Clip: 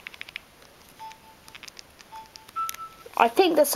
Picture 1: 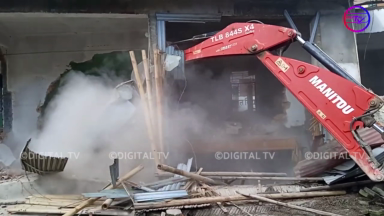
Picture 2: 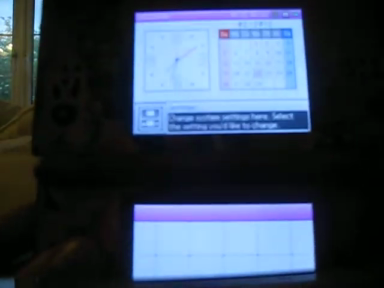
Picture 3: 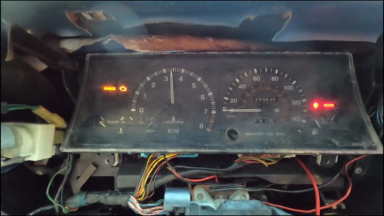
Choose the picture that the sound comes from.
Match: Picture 2